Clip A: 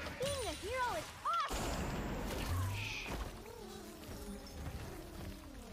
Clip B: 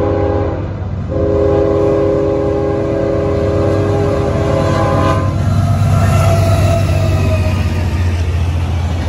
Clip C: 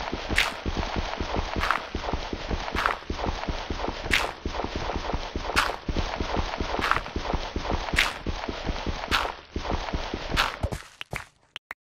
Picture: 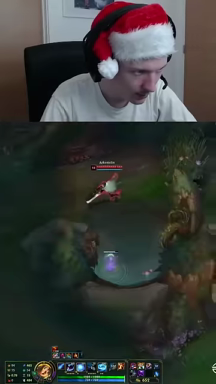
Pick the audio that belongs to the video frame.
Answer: A